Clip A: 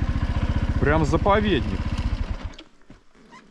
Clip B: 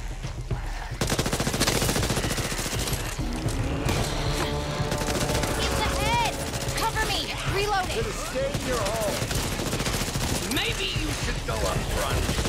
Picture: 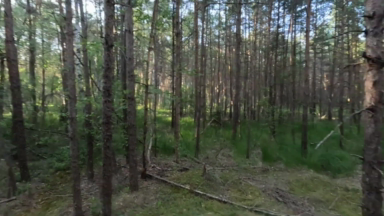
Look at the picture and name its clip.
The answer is A